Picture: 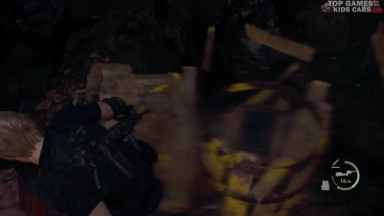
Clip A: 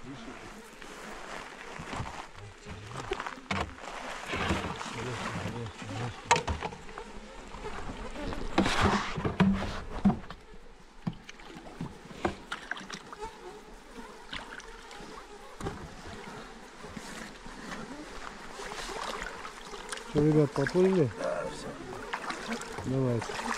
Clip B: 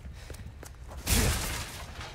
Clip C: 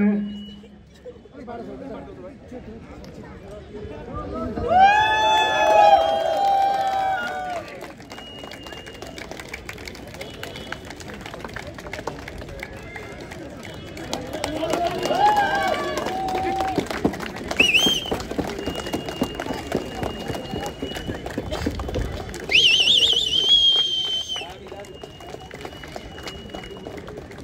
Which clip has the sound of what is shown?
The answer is B